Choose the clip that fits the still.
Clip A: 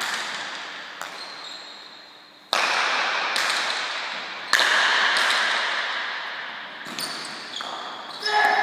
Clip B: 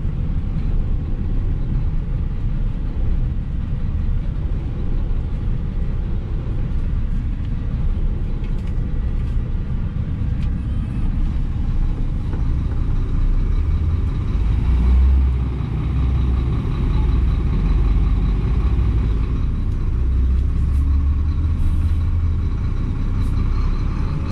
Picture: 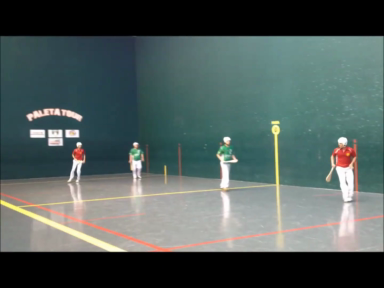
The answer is A